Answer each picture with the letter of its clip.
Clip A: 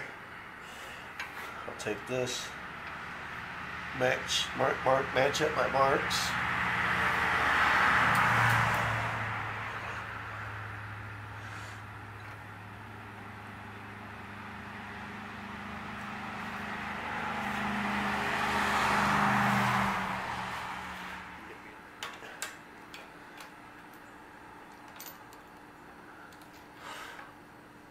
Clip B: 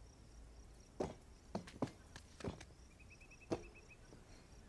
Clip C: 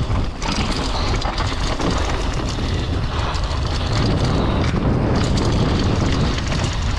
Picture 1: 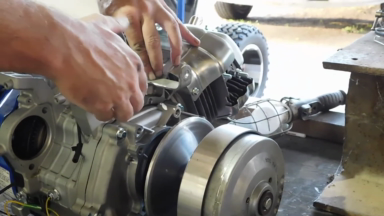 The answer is A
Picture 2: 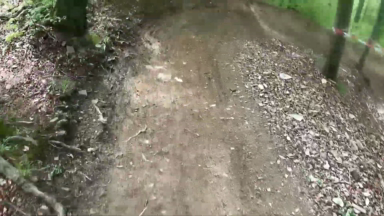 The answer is C